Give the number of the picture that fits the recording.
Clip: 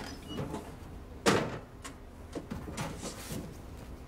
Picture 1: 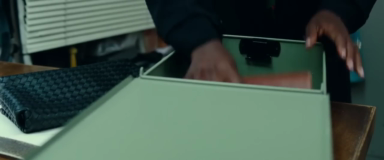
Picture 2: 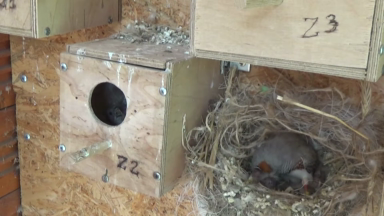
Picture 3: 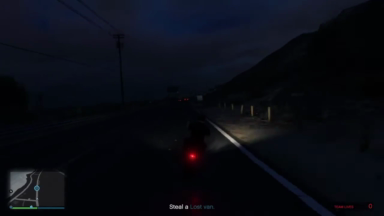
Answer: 1